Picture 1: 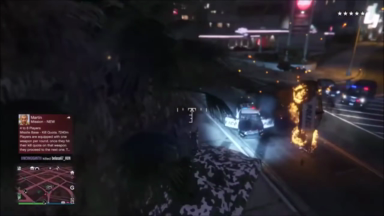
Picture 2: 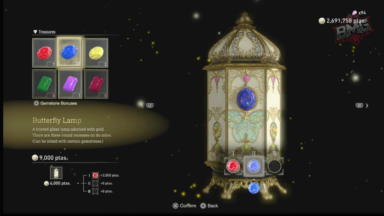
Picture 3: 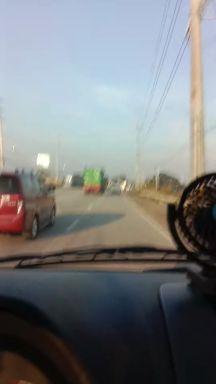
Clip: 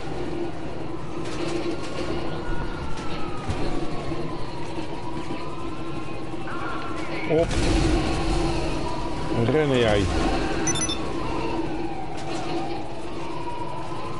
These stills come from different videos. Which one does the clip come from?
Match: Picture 1